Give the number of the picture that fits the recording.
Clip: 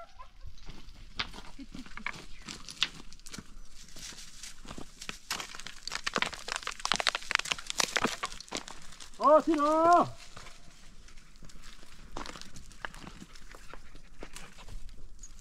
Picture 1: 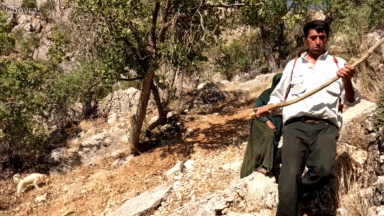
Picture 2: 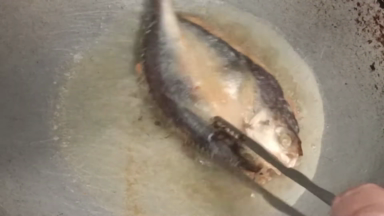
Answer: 1